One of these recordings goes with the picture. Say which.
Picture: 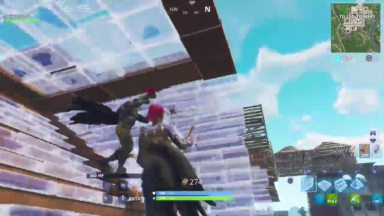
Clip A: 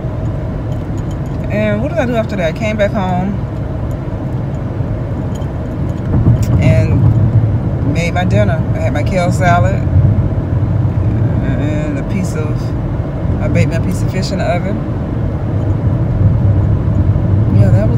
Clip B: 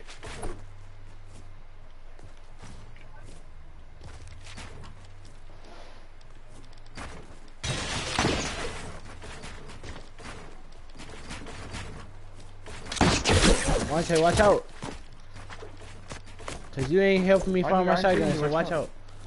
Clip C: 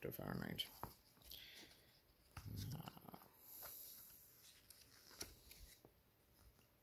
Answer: B